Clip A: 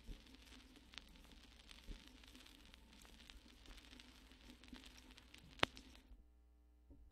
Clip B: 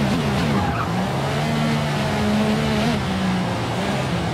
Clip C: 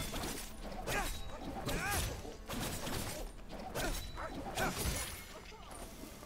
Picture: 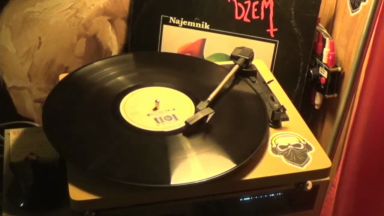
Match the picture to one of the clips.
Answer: A